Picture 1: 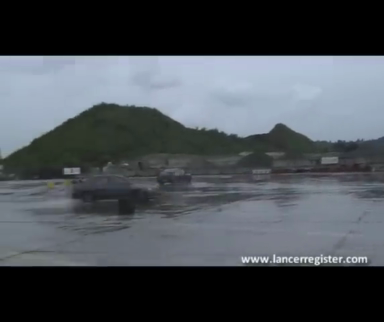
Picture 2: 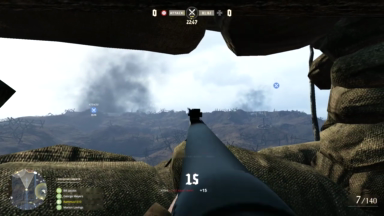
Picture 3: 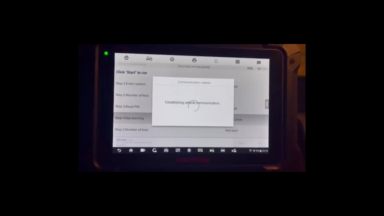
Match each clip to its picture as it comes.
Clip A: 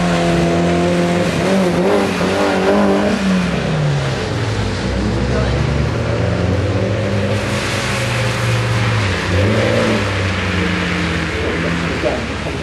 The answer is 1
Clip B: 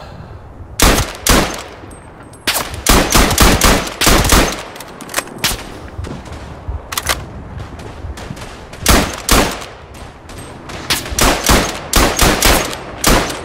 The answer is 2